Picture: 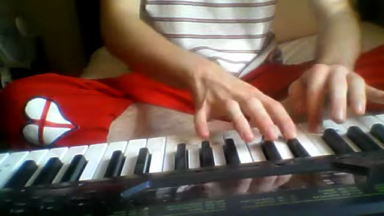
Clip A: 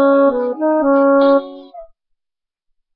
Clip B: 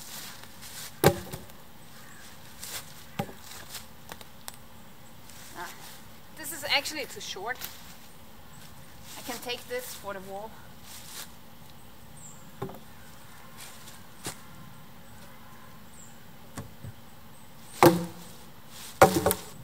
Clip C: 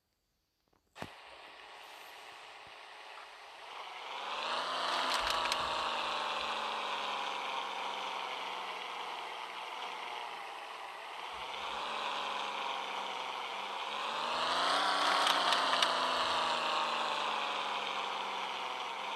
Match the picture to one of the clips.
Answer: A